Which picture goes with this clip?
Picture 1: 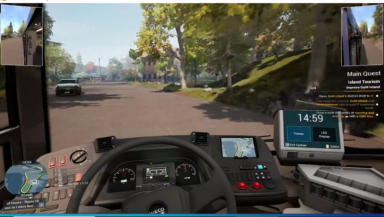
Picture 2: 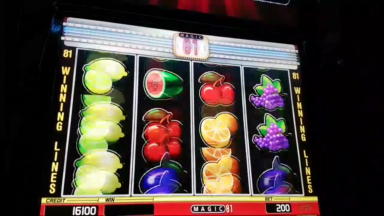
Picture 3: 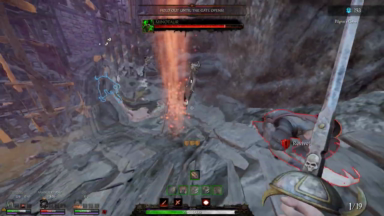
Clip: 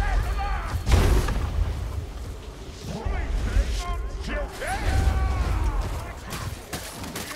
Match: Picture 3